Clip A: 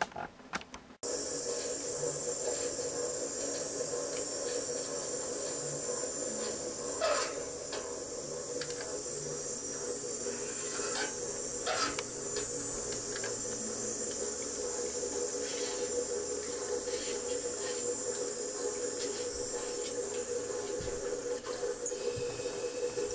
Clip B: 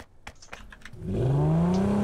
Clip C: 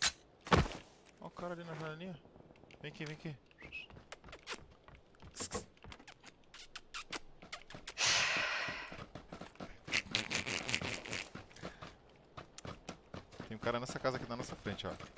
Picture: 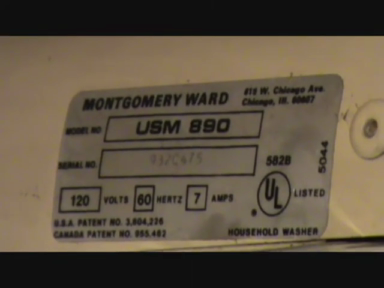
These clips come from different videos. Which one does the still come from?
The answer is A